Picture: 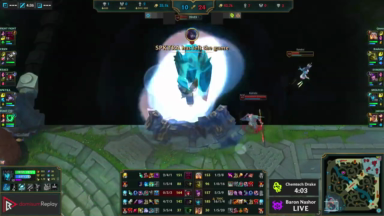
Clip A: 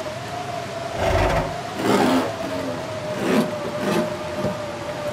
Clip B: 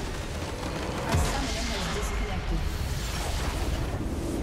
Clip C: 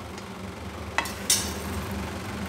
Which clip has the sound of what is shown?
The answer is B